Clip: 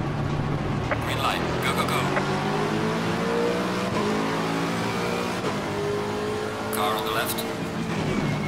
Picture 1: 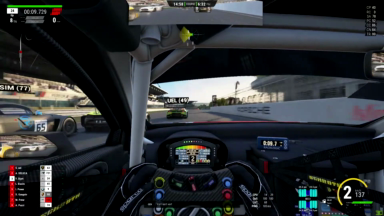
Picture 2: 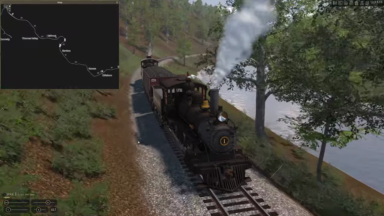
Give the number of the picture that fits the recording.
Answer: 1